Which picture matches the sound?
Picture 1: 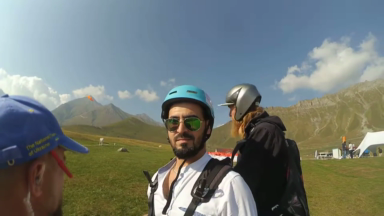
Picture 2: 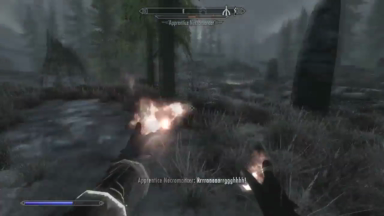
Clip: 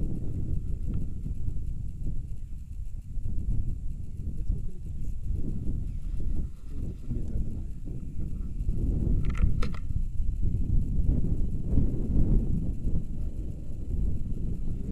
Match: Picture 1